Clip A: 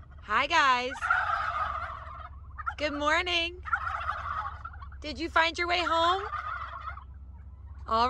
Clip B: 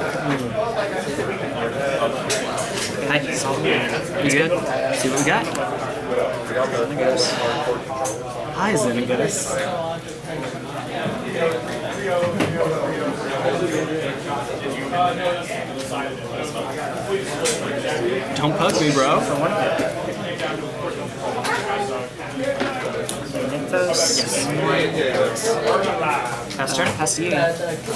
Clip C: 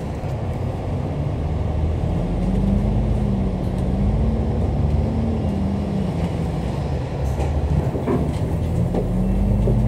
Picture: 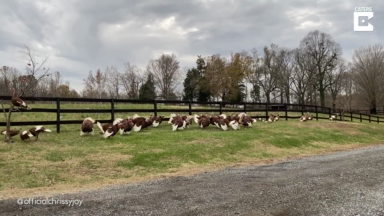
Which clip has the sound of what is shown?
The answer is A